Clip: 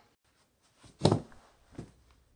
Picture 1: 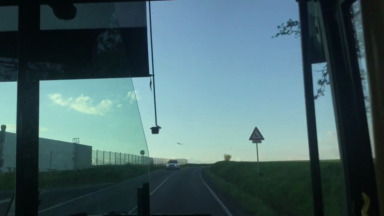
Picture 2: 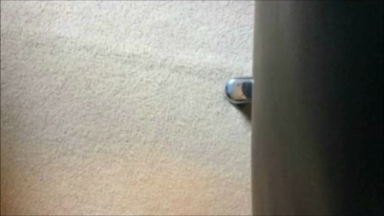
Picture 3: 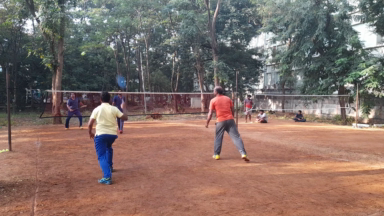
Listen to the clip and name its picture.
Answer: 2